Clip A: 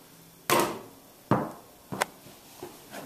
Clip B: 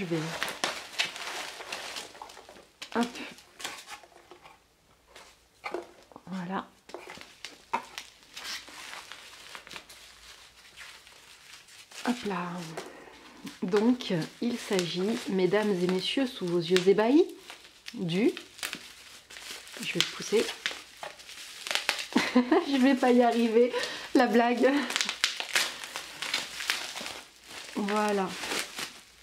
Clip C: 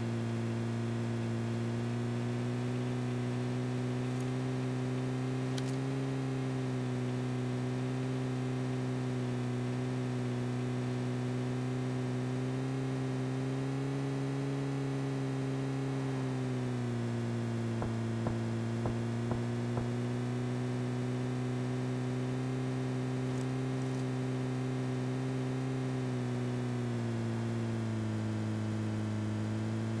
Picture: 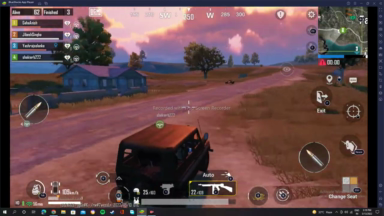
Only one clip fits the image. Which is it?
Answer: C